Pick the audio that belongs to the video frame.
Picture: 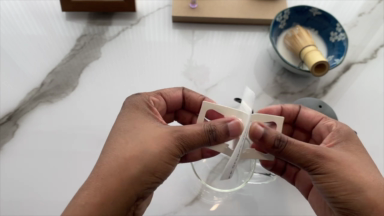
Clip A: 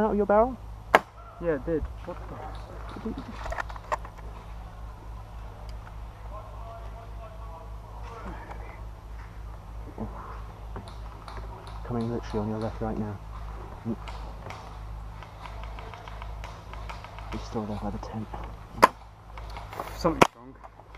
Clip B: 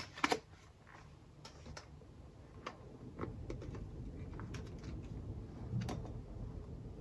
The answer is B